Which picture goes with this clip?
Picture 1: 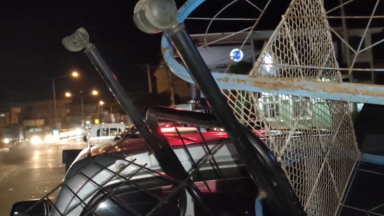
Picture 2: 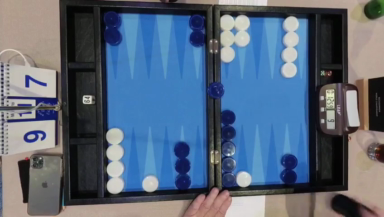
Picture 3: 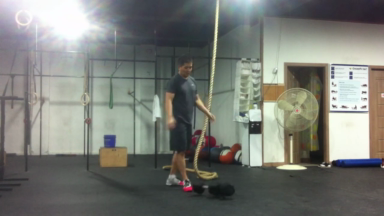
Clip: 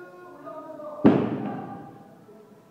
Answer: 3